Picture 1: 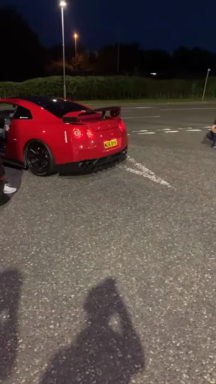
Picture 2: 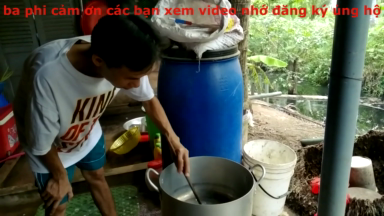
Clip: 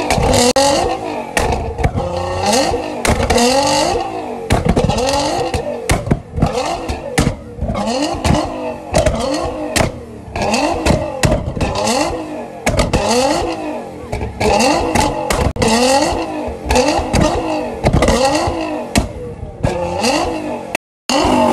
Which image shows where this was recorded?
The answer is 1